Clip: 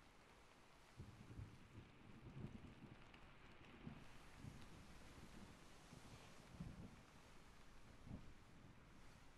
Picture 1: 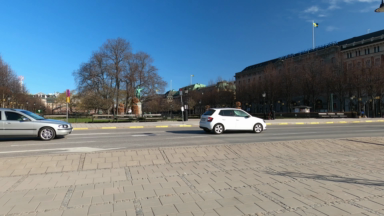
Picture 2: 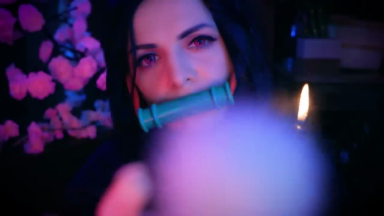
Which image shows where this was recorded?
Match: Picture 2